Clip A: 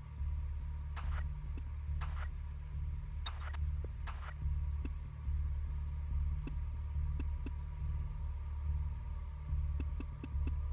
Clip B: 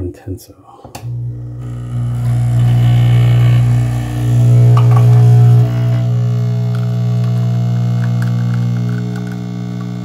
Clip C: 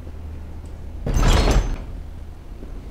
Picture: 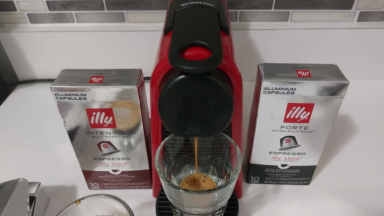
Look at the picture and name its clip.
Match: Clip B